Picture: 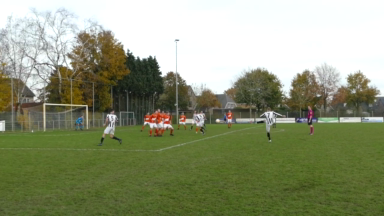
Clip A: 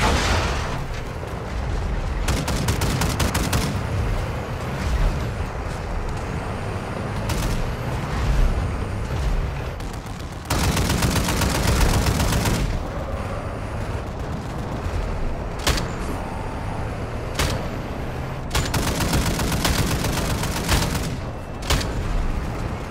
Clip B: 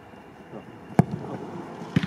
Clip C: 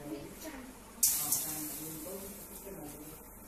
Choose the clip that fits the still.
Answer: B